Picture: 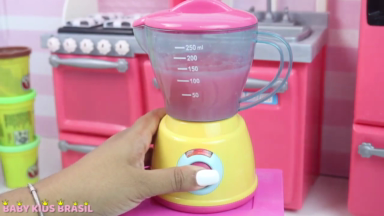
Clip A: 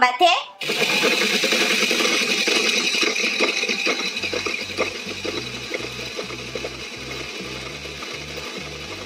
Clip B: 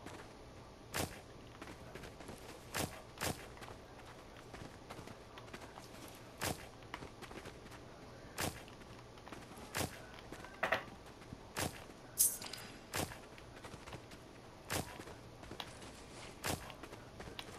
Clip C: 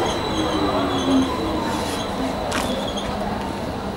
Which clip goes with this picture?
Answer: A